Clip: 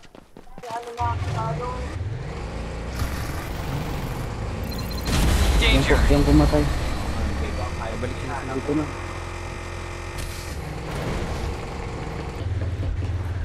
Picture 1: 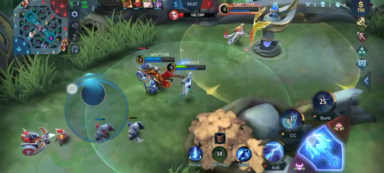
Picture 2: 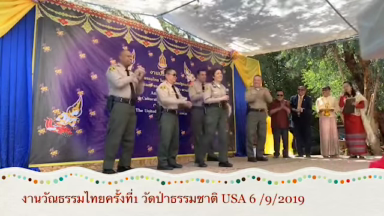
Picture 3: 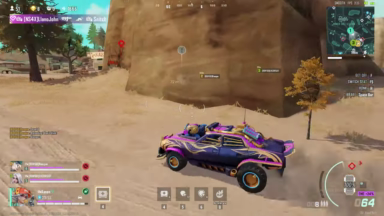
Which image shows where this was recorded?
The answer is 3